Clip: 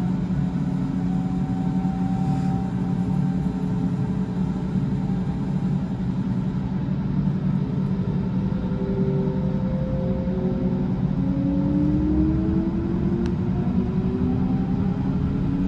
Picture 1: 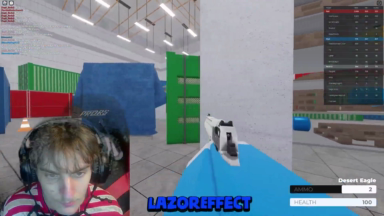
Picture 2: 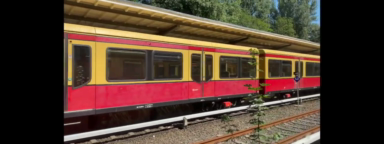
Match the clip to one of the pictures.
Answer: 2